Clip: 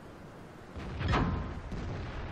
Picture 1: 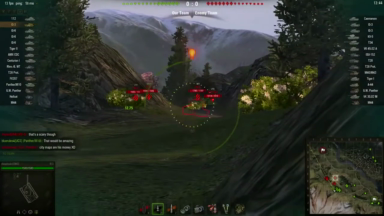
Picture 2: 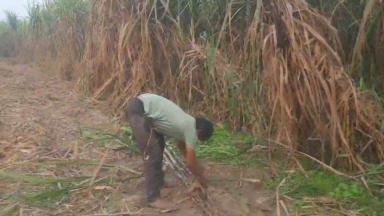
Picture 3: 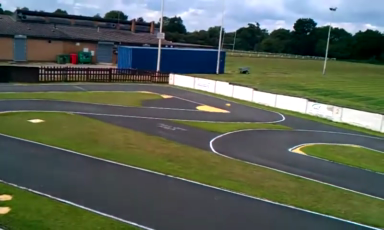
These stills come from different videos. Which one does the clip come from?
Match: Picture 1